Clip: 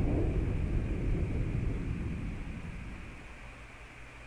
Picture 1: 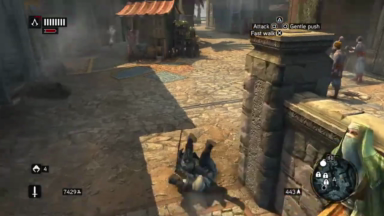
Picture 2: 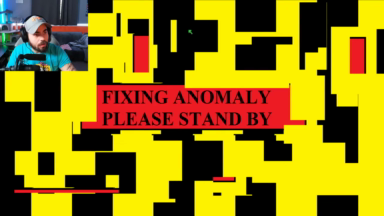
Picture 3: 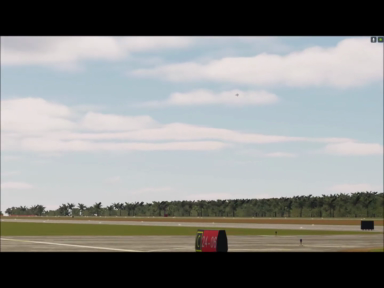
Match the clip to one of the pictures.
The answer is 3